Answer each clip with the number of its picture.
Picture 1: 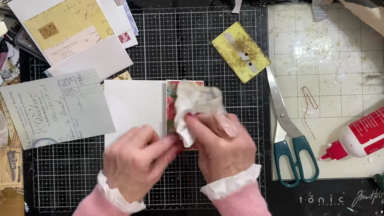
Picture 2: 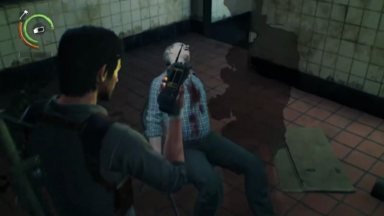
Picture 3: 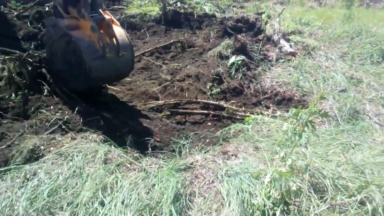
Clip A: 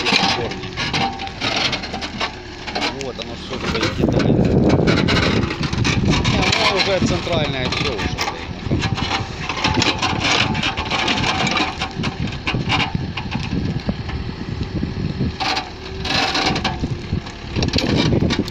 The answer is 3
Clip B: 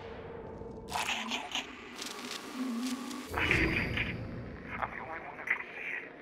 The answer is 2